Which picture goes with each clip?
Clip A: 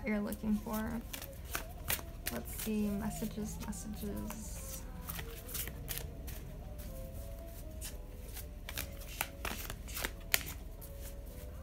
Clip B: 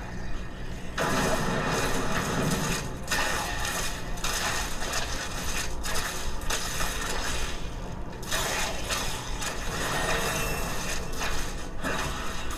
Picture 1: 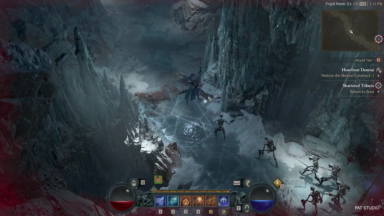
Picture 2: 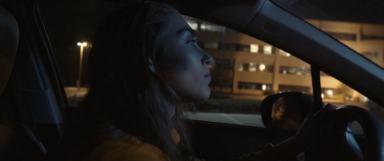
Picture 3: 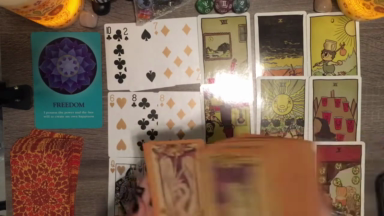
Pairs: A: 3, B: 1